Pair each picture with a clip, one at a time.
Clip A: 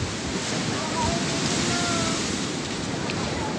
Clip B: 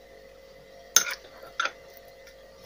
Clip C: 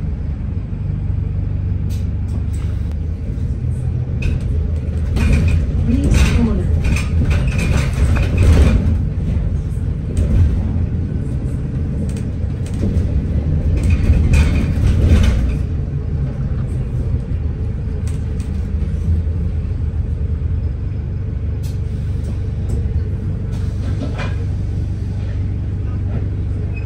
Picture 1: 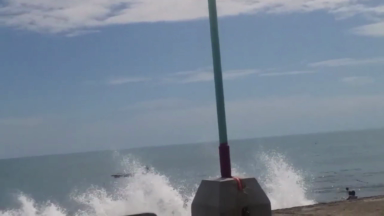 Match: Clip A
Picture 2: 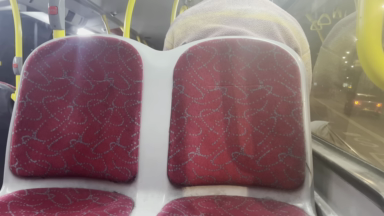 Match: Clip C